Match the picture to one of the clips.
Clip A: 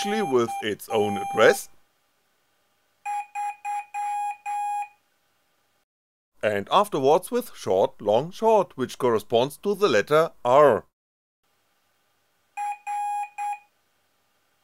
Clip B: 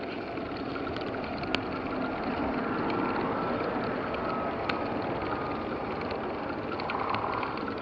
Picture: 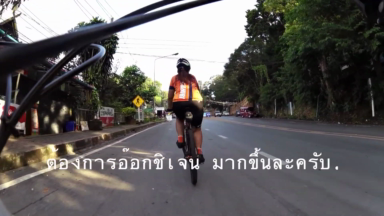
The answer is B